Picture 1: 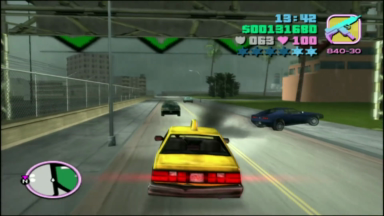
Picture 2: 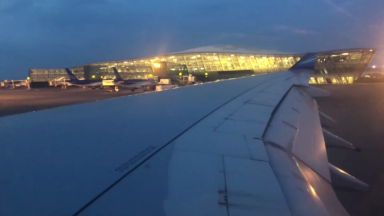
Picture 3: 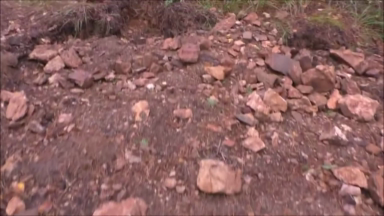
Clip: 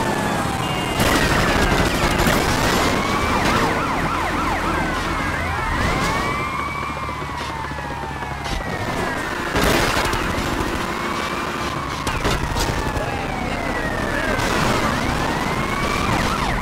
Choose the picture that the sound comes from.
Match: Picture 1